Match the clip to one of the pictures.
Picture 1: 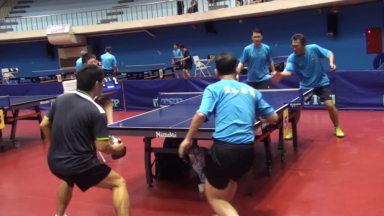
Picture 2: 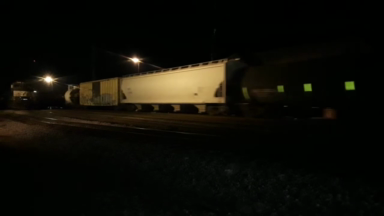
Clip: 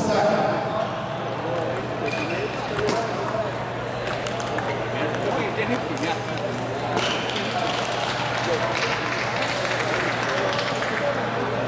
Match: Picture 1